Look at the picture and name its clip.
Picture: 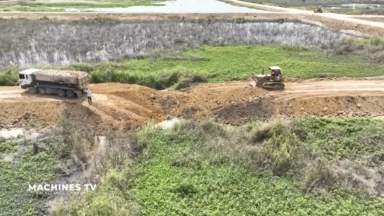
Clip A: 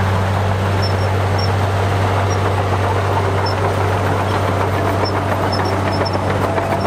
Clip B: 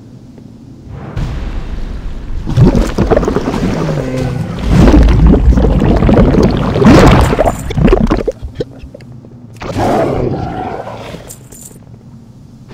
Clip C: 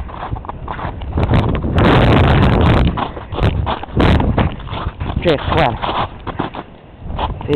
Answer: A